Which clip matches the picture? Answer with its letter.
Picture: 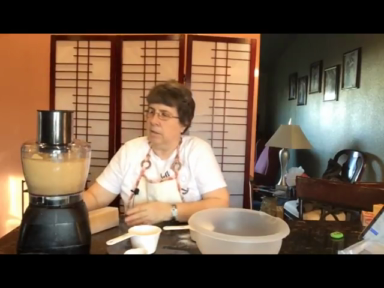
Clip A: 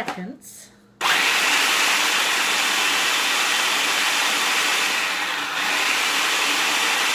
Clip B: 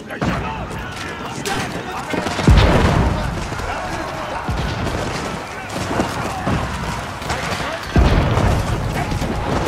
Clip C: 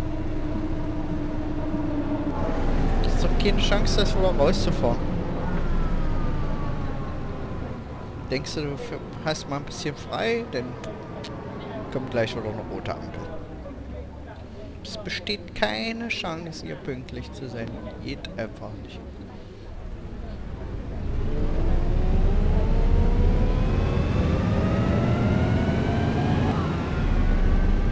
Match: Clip A